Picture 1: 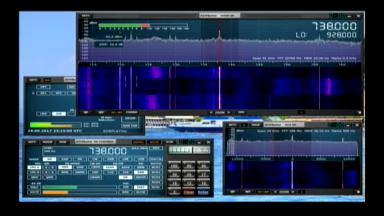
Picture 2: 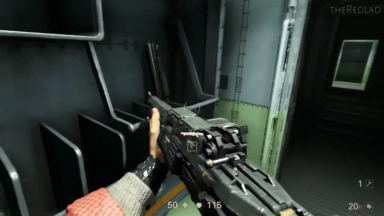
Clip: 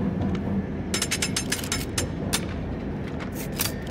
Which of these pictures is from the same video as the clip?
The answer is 2